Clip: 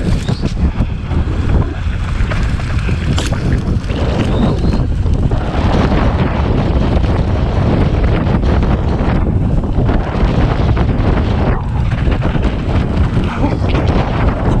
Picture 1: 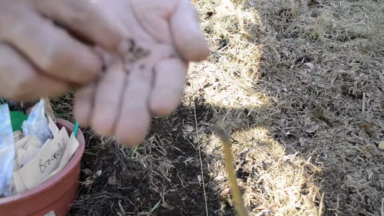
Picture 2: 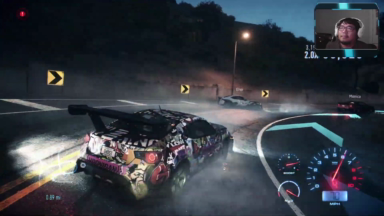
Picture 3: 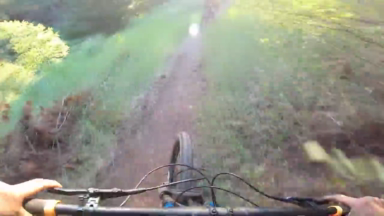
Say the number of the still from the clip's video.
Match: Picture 3